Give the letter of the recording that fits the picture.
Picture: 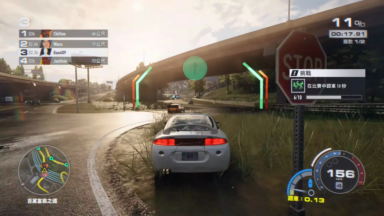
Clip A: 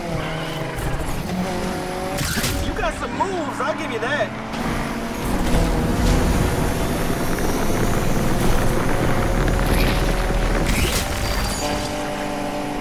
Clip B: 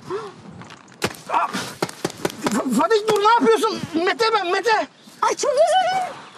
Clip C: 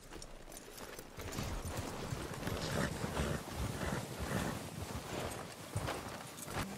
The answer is A